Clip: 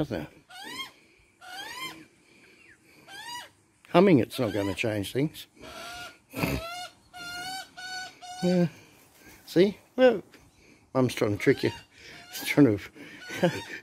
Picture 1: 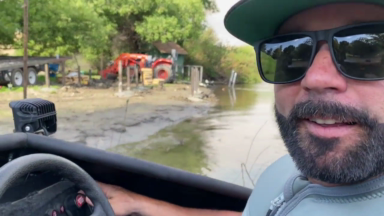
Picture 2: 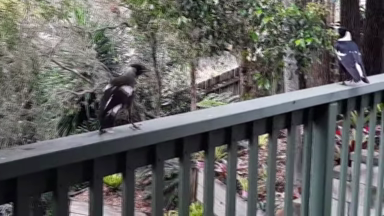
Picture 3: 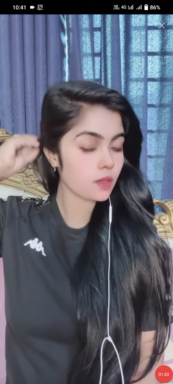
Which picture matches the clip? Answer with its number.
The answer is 2